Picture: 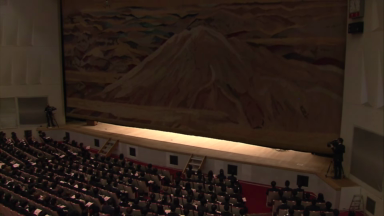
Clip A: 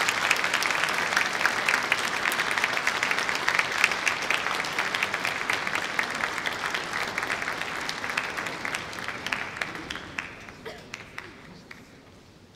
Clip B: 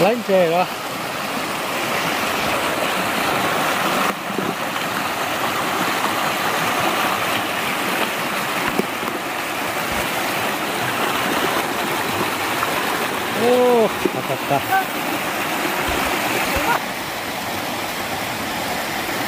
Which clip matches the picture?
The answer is A